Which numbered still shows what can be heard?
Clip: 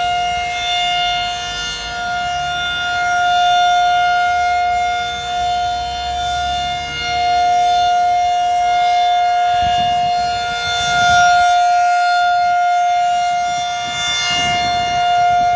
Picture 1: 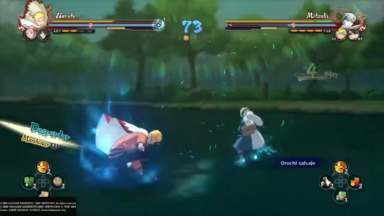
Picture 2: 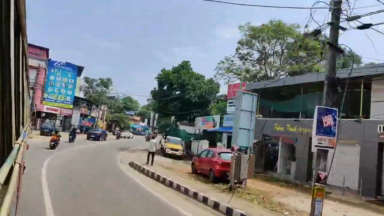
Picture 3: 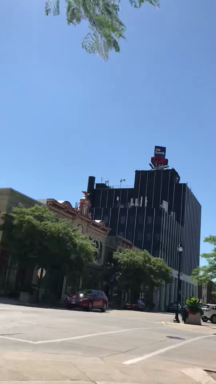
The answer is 3